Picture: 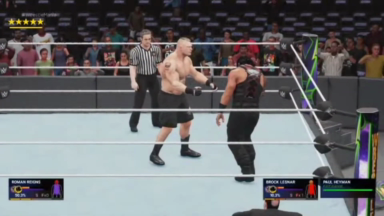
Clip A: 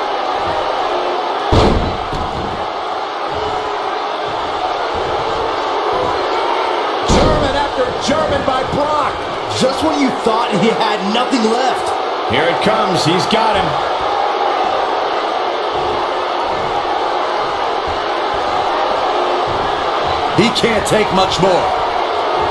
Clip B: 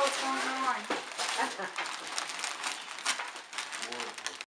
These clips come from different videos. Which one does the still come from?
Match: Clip A